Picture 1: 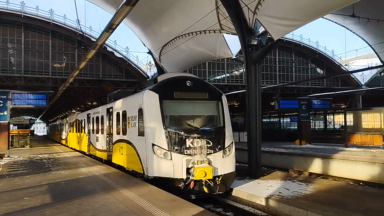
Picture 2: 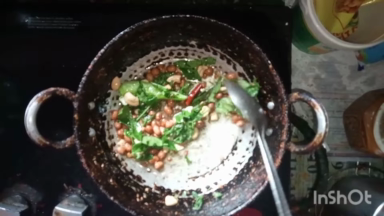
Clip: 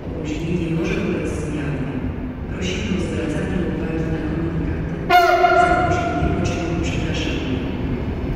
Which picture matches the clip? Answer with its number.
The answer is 1